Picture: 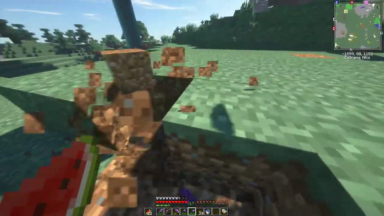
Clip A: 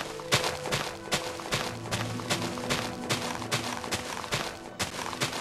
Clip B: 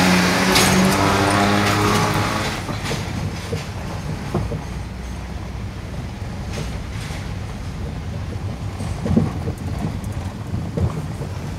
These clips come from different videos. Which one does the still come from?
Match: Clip A